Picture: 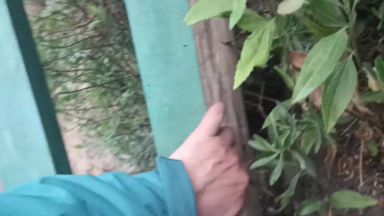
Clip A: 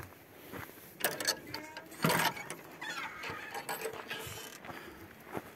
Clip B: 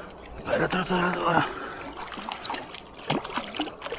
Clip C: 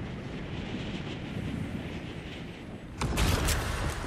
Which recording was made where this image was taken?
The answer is A